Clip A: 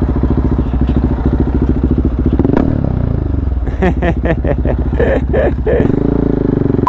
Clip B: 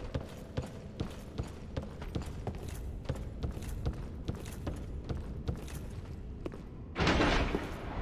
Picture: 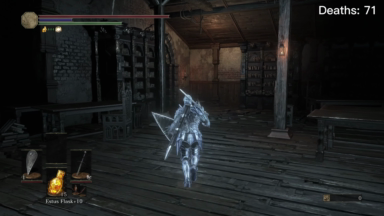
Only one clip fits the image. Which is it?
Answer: B